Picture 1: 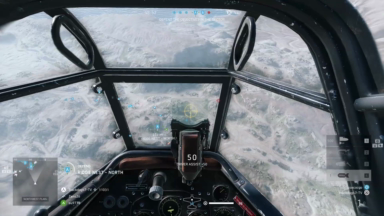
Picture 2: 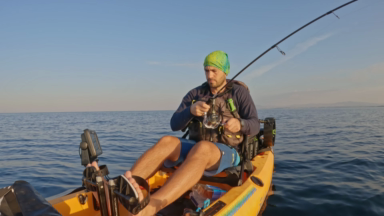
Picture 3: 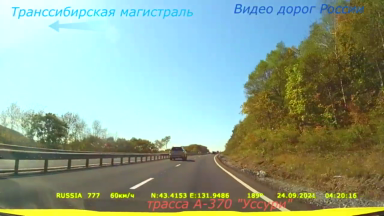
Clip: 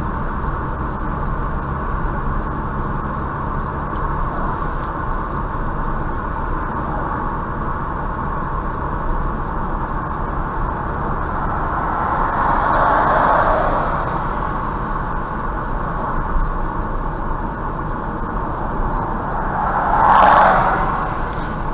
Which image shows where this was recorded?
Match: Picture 3